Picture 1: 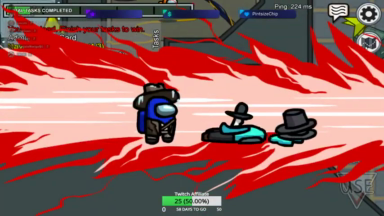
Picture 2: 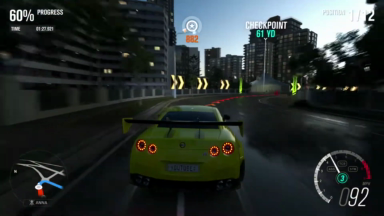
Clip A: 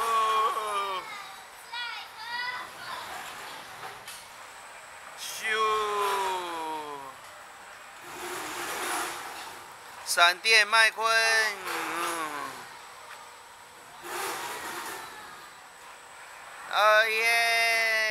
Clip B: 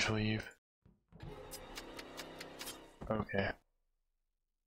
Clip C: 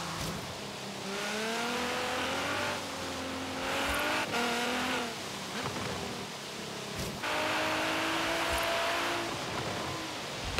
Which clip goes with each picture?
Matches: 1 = B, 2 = C